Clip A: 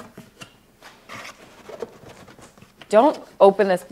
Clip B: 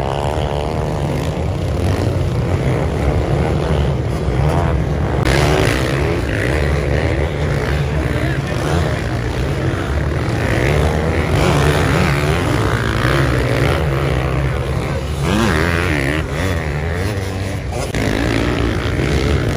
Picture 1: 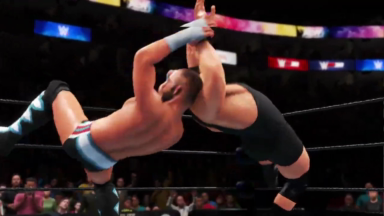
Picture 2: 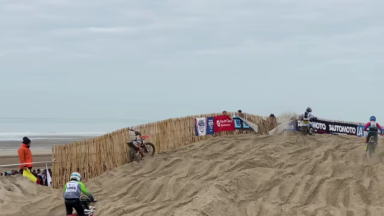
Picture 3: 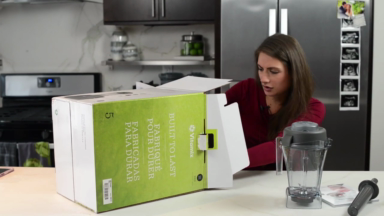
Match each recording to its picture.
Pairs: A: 3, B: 2